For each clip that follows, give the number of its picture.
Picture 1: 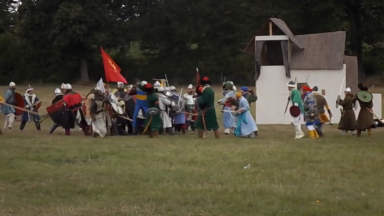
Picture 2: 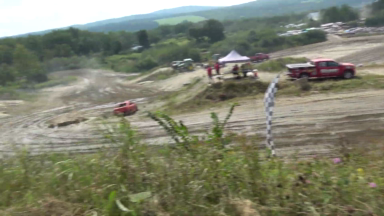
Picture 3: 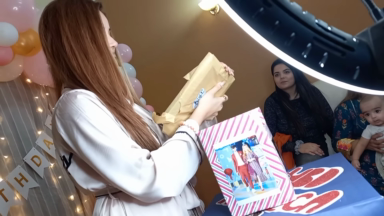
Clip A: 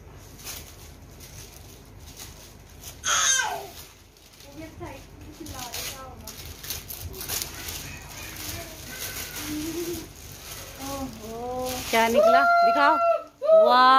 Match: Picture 3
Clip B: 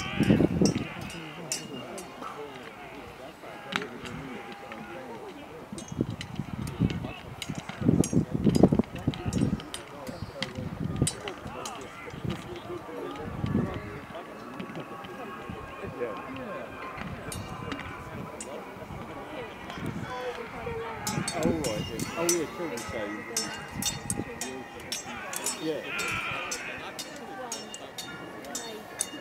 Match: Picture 1